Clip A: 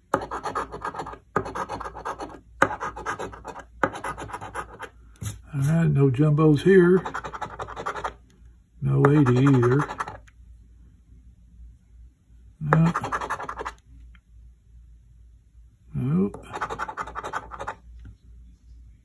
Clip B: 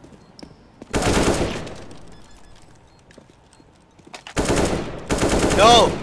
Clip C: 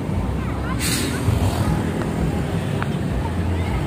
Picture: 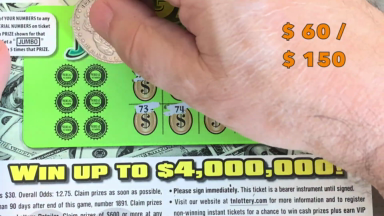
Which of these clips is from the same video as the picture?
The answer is A